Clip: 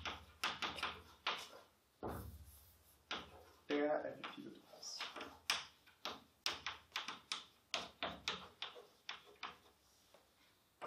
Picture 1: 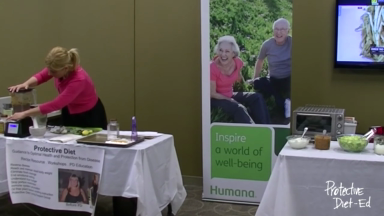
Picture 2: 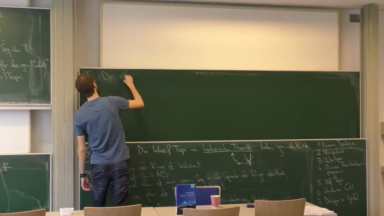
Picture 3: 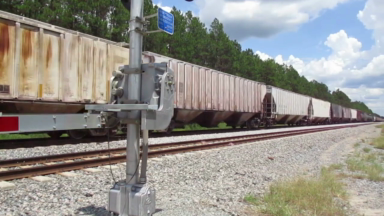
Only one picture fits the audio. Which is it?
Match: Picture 2